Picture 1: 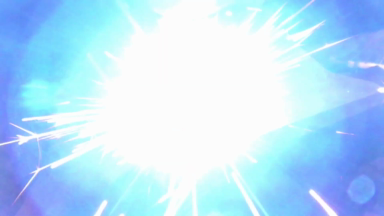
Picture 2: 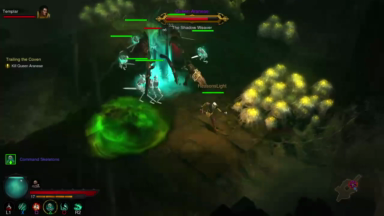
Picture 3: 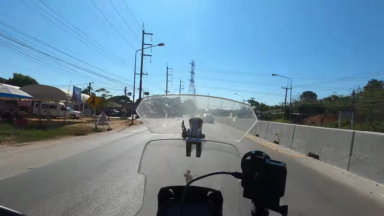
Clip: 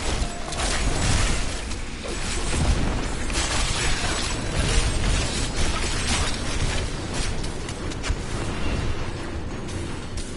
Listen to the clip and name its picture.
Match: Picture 2